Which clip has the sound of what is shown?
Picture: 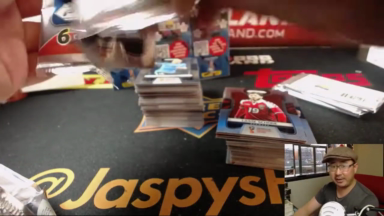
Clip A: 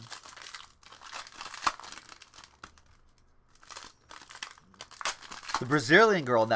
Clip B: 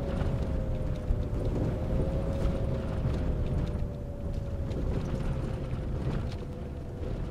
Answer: A